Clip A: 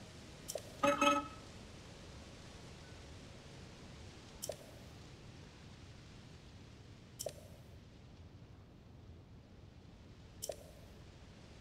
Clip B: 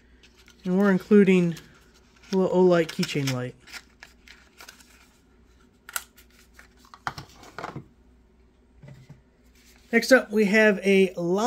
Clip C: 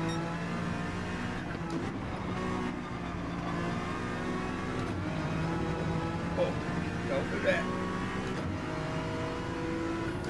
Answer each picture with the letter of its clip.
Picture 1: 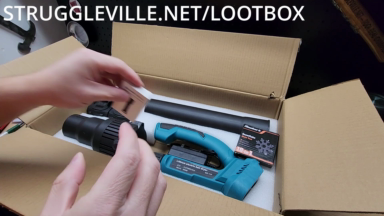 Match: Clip B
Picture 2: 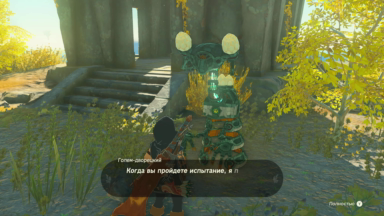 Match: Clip A